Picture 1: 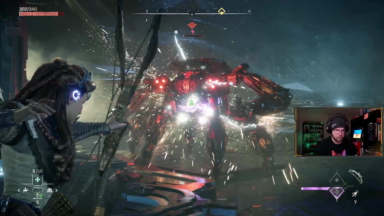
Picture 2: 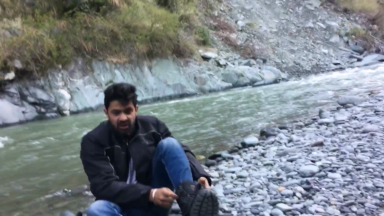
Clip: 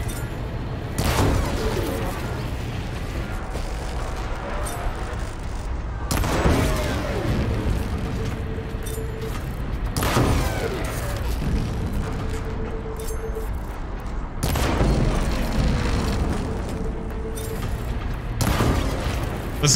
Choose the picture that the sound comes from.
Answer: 1